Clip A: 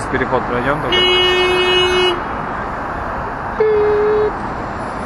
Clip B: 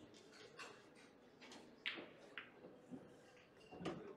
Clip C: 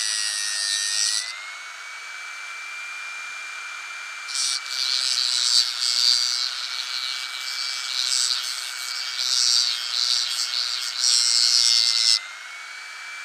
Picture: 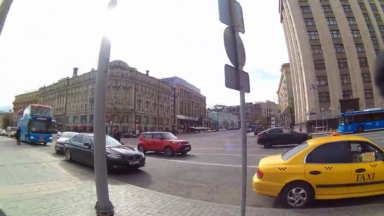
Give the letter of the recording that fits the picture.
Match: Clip A